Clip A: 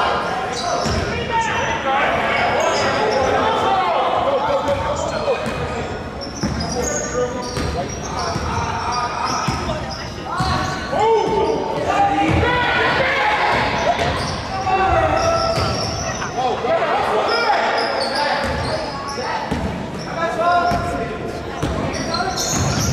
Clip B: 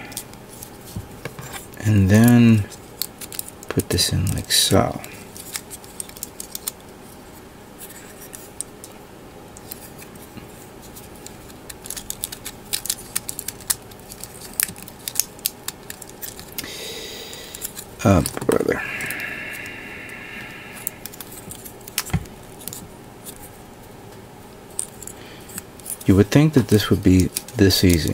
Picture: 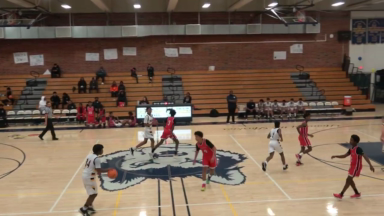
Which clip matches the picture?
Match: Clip A